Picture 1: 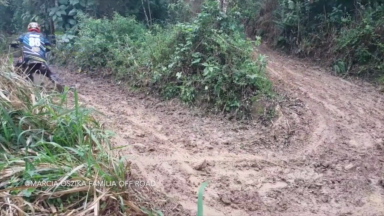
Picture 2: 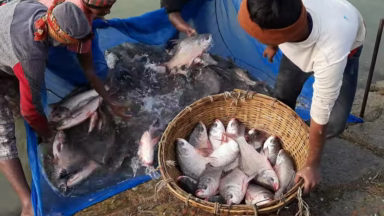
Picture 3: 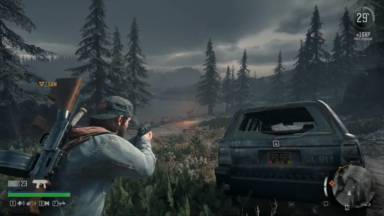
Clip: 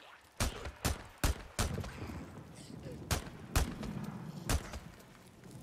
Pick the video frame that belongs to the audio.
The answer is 3